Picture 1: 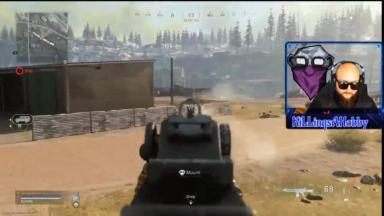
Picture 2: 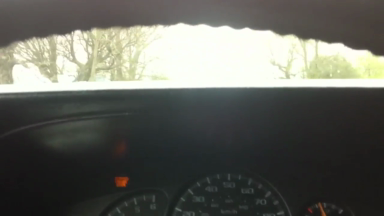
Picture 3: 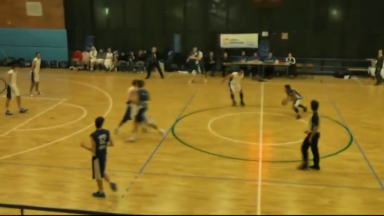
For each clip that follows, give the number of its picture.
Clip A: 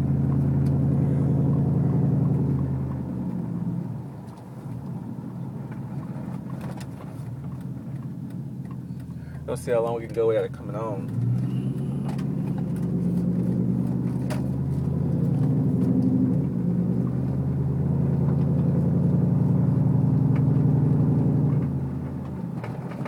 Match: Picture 2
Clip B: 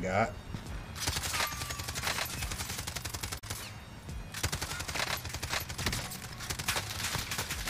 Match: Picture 1